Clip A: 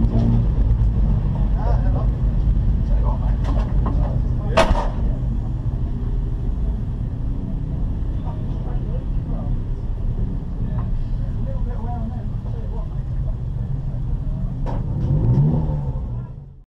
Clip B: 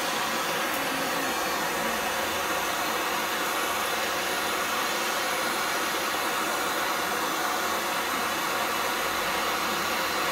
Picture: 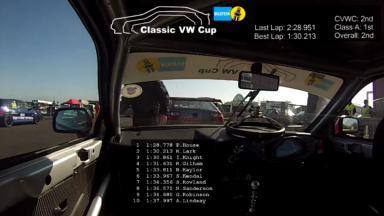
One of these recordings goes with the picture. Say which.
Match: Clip A